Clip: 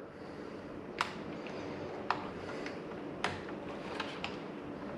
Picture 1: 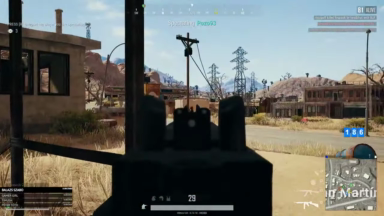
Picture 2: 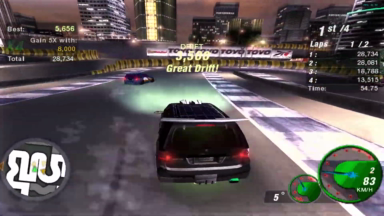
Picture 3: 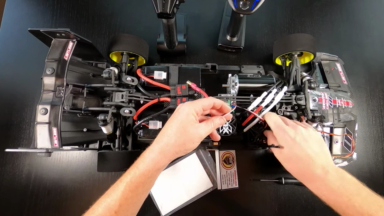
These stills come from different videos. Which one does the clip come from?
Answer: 3